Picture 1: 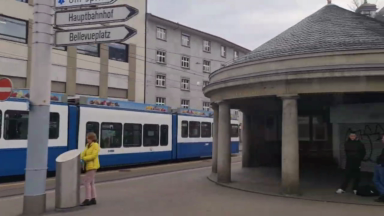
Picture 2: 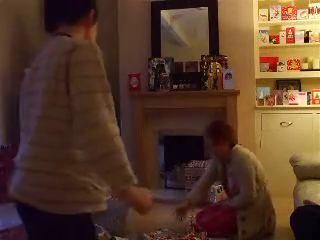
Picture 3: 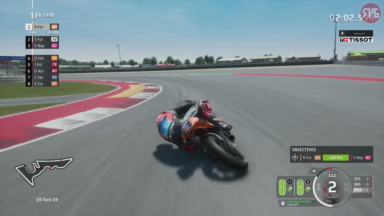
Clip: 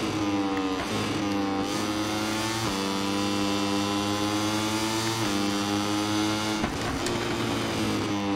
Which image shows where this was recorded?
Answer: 3